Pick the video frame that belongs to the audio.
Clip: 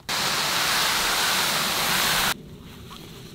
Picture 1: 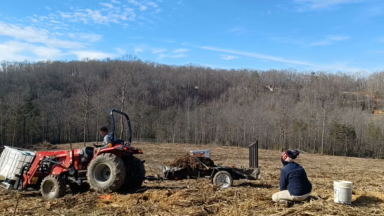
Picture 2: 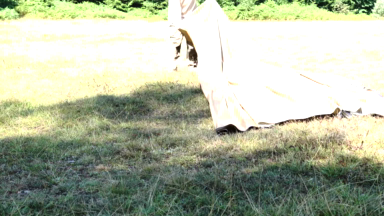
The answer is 2